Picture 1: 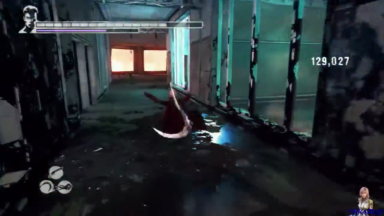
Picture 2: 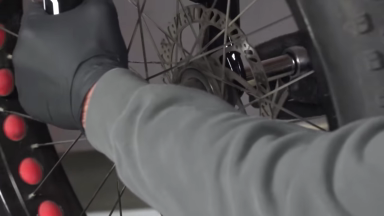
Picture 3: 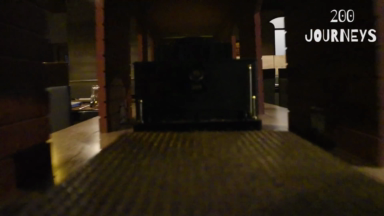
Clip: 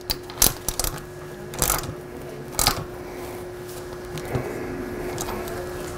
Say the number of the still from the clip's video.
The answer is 2